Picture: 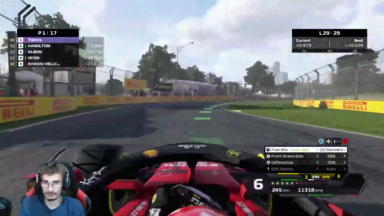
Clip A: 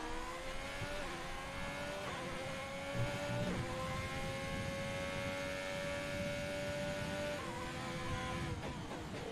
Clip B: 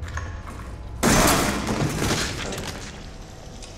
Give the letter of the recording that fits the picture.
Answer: A